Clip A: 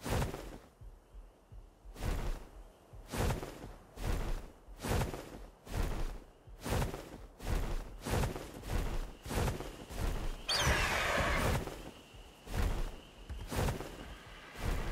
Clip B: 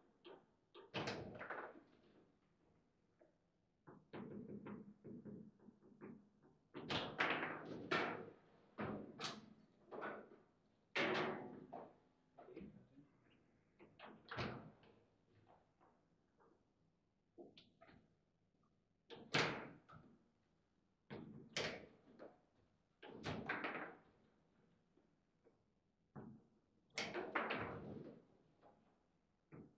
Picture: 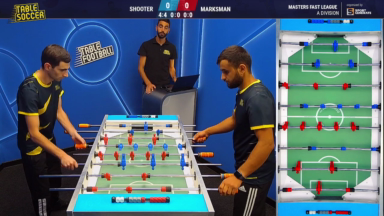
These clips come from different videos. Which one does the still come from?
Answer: B